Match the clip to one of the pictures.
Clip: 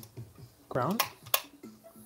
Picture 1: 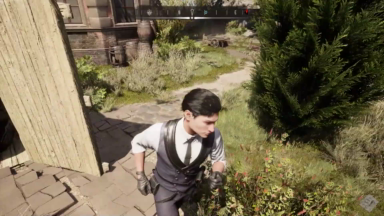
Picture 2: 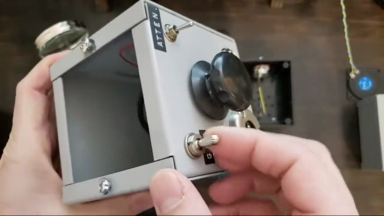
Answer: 2